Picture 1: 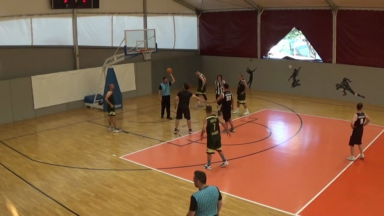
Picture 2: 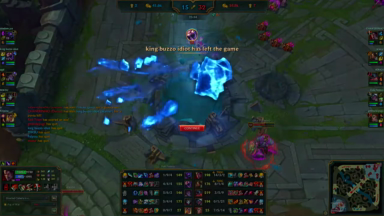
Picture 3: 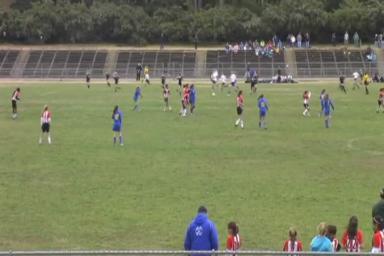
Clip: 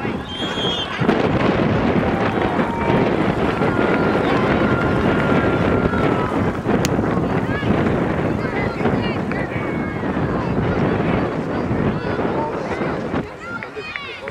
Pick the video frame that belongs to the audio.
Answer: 3